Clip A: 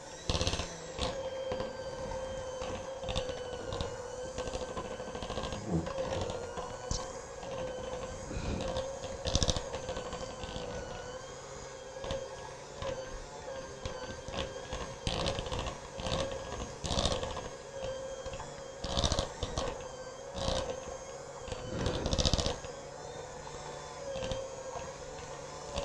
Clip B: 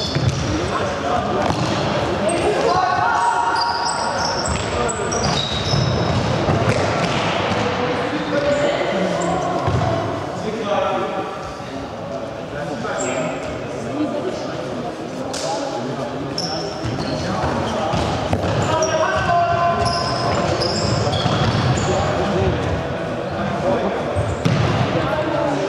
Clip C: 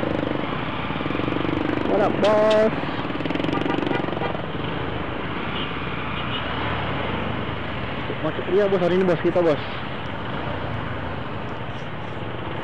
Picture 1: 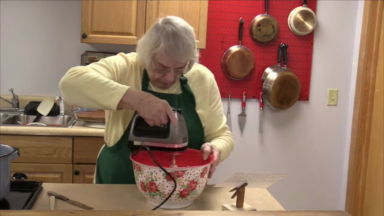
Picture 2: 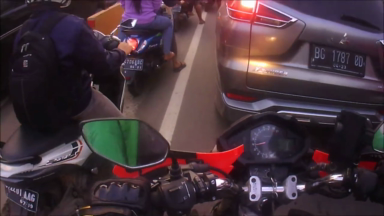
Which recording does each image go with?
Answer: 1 A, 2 C